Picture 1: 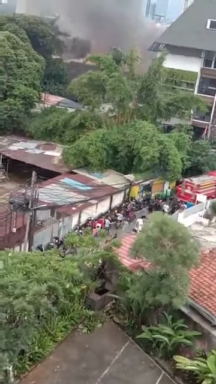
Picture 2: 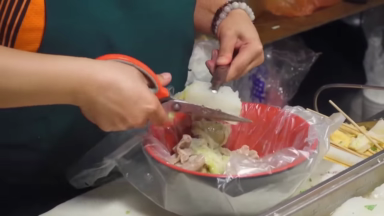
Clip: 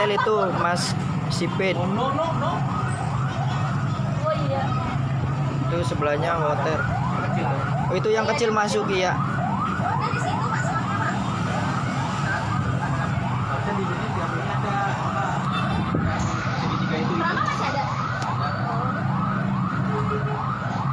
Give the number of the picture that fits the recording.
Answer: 1